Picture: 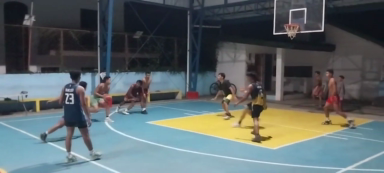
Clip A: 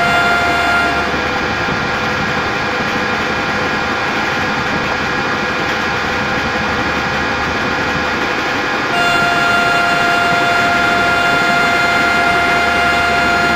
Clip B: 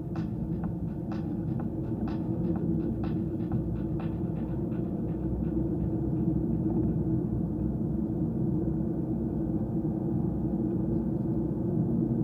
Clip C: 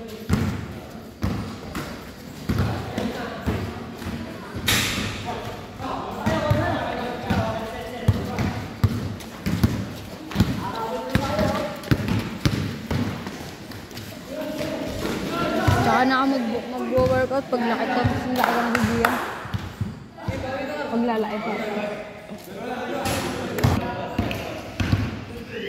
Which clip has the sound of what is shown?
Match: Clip C